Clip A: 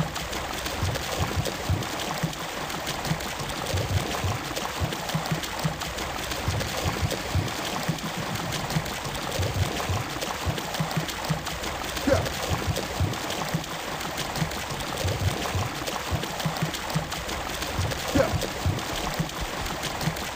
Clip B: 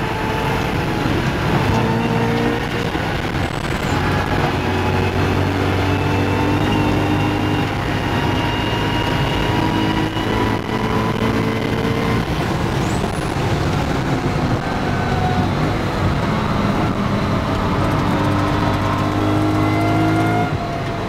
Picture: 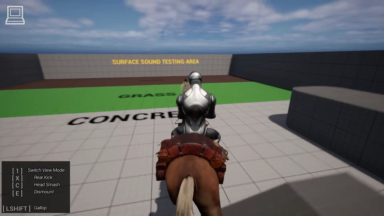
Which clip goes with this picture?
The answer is A